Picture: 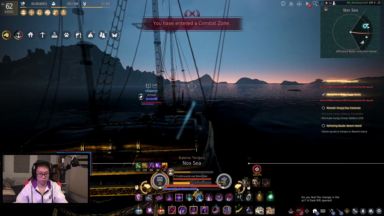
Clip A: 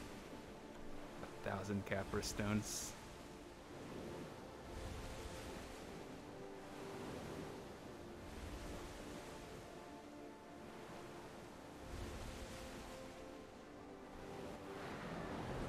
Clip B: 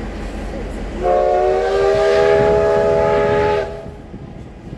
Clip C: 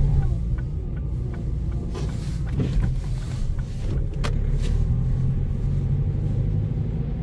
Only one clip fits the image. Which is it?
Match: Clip A